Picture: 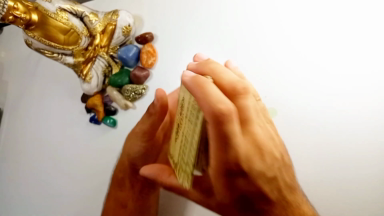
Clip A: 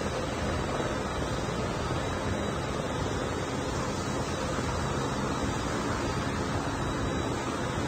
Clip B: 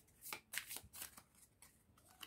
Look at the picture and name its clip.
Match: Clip B